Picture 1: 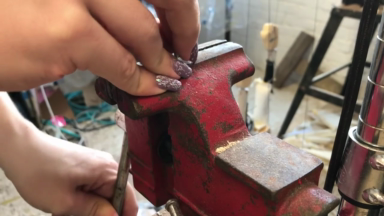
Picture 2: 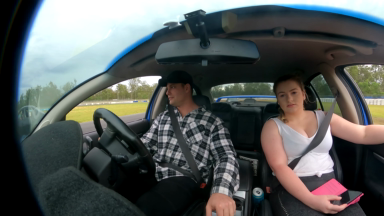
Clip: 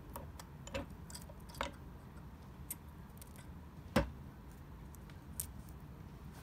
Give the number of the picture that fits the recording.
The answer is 1